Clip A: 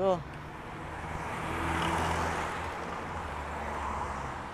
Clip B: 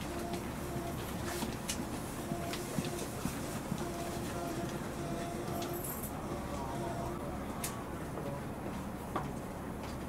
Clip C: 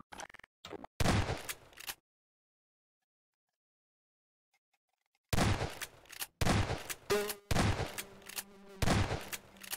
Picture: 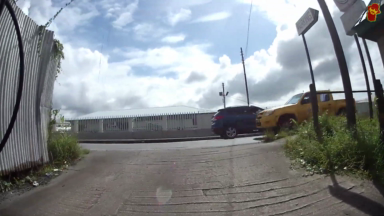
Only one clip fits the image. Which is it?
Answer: A